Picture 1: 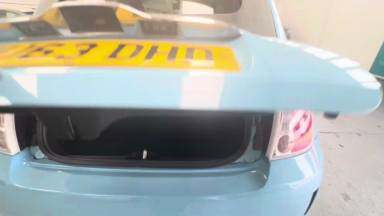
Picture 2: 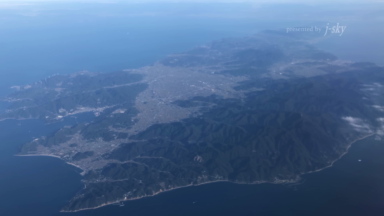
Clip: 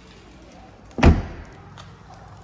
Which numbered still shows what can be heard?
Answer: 1